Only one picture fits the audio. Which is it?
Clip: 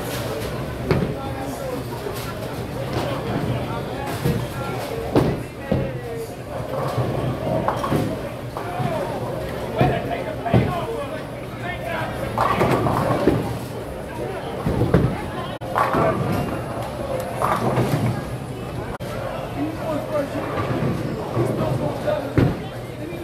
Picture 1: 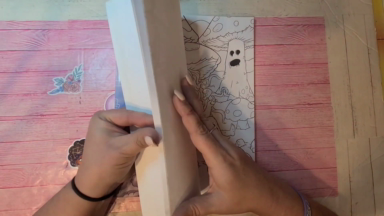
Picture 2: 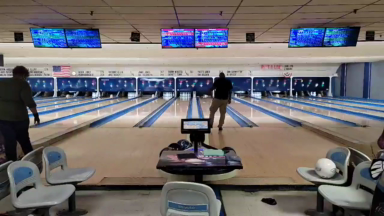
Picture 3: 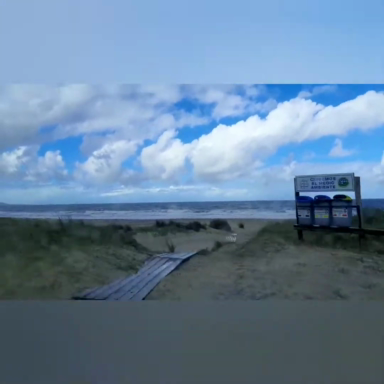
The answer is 2